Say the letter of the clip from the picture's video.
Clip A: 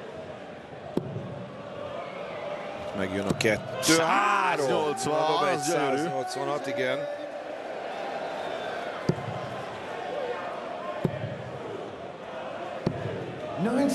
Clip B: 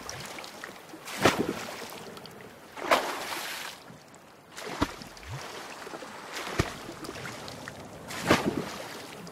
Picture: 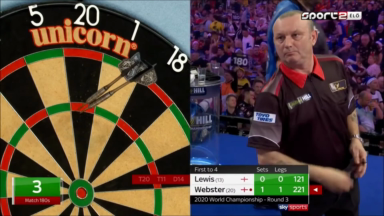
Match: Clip A